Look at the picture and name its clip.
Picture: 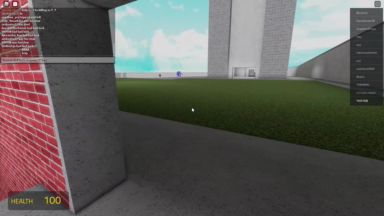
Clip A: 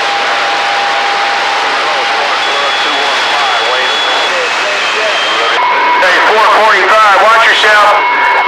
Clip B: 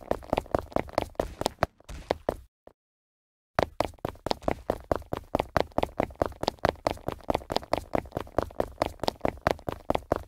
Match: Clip B